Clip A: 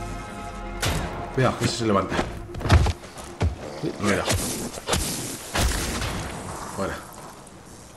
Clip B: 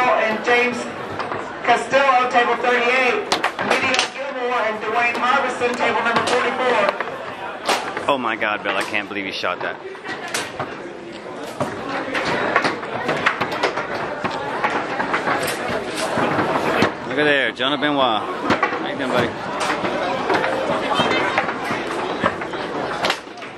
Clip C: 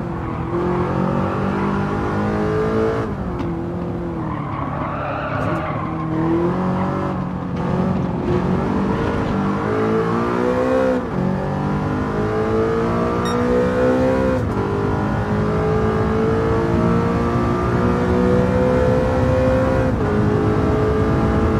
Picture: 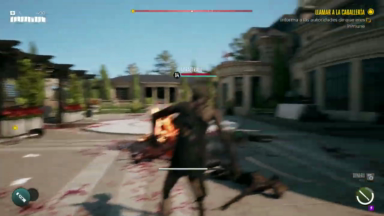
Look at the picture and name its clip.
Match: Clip A